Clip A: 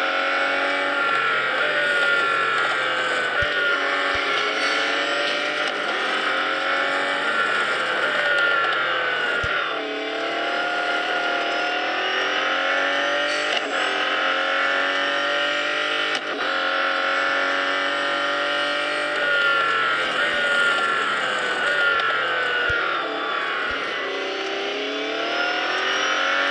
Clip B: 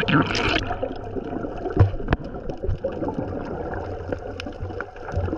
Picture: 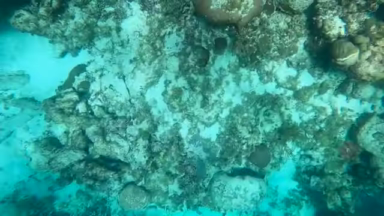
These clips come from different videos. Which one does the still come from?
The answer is B